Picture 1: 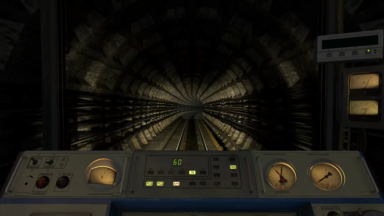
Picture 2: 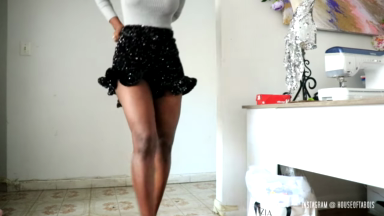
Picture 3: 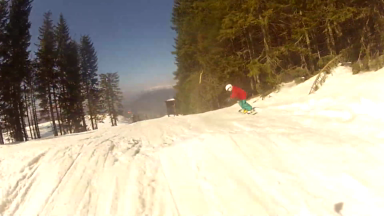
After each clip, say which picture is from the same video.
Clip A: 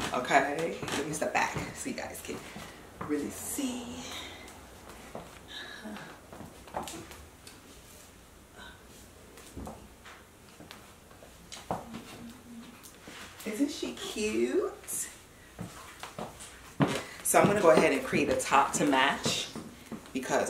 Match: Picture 2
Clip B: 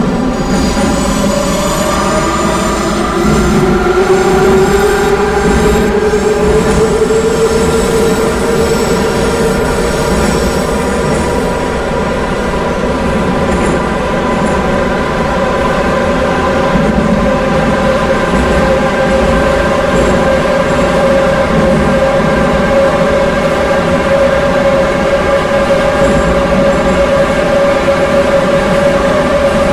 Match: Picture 1